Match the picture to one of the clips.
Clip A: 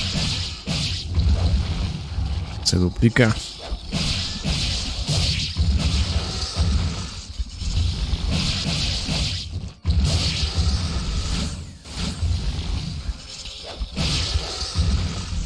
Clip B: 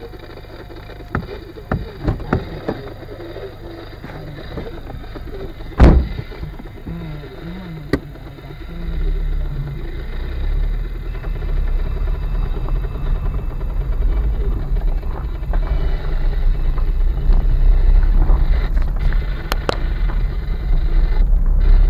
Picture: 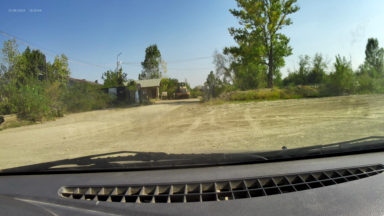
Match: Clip B